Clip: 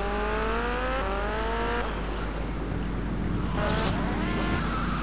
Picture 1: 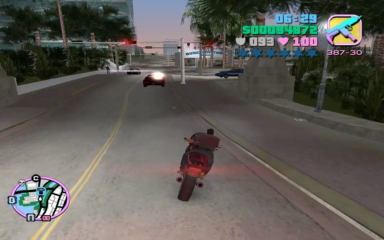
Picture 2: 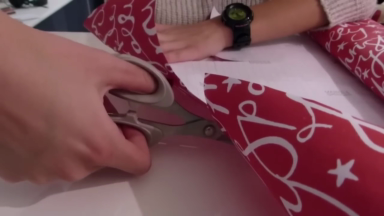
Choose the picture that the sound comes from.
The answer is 1